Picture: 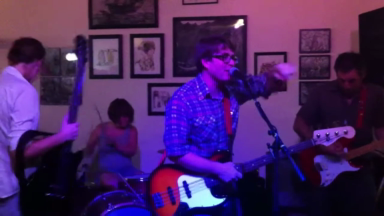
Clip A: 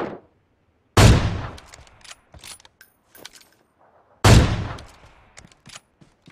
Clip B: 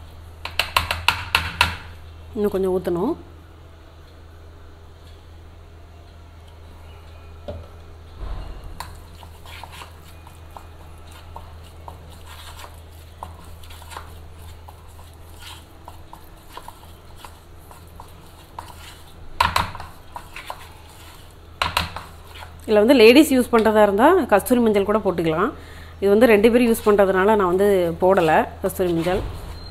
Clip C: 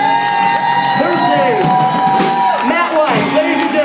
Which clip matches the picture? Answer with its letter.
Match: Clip C